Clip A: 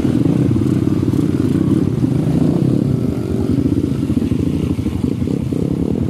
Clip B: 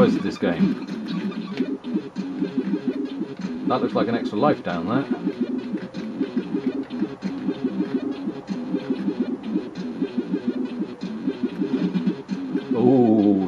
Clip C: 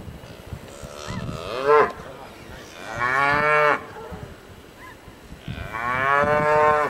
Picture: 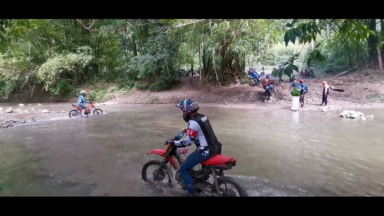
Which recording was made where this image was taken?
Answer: A